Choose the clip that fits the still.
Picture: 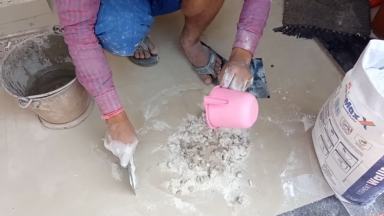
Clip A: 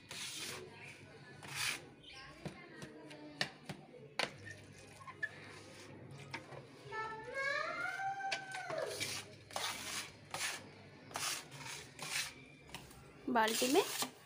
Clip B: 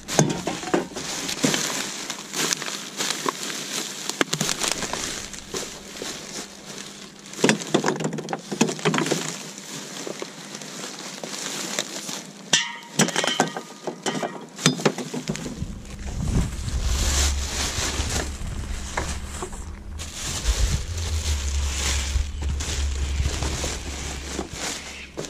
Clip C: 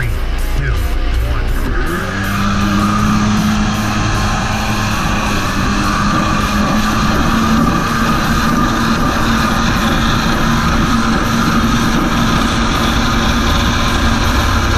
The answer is A